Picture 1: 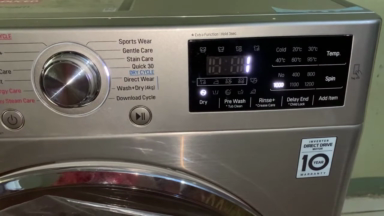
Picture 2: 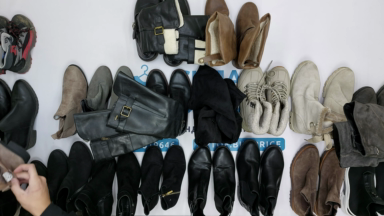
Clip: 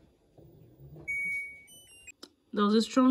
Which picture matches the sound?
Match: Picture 1